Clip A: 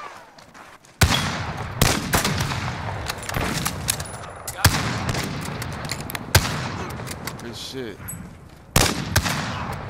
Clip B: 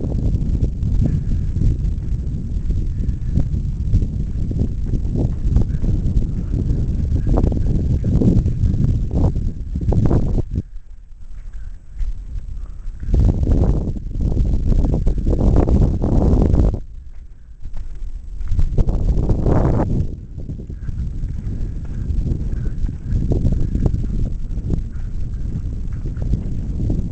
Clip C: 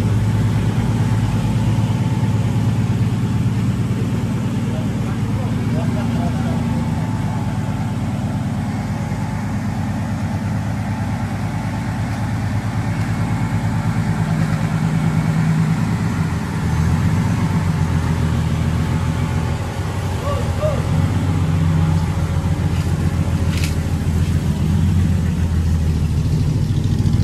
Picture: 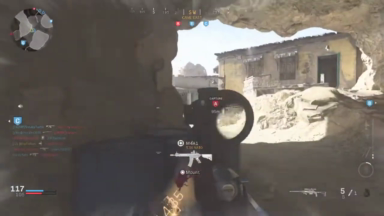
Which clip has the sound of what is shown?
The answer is A